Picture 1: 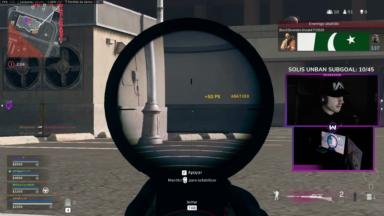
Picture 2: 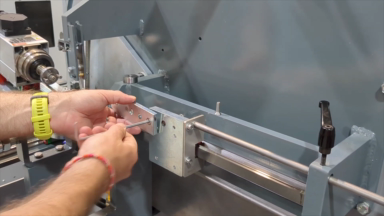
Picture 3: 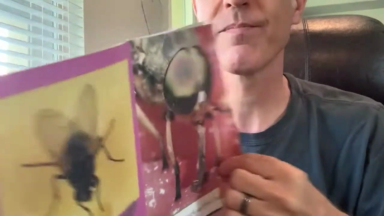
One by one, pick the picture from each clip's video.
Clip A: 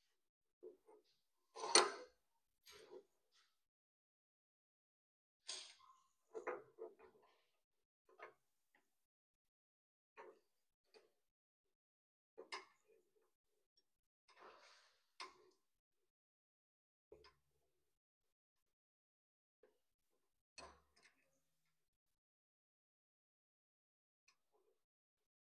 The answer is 2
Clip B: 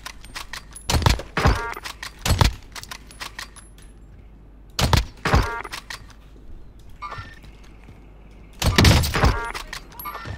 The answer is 1